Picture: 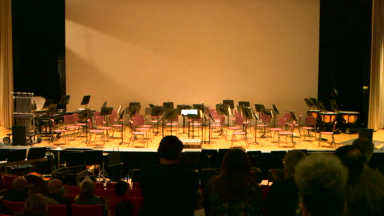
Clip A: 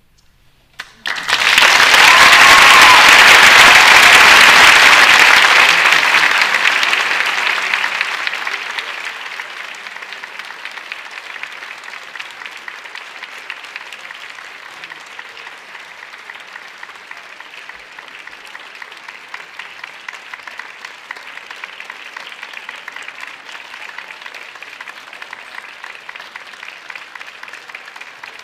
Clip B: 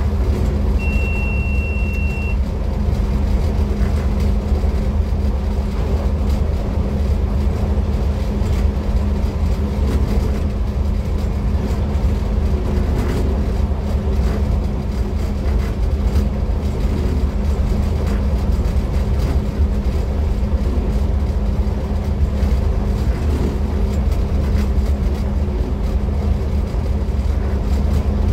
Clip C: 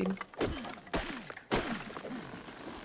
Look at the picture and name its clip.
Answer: A